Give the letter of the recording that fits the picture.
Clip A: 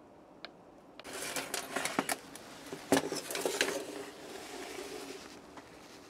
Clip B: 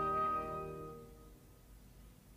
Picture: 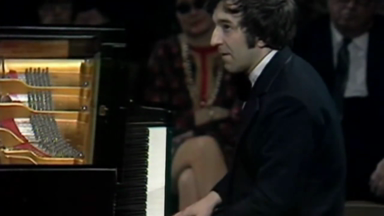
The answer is B